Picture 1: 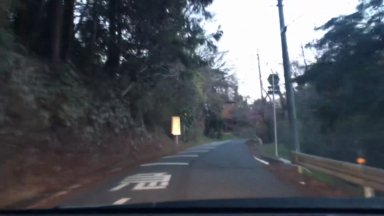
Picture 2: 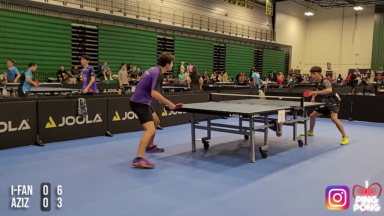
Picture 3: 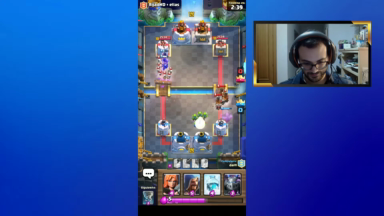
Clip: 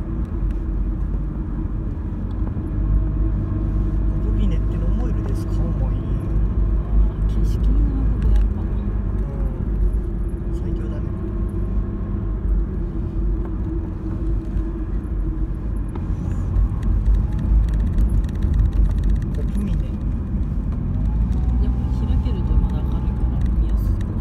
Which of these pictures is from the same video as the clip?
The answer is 1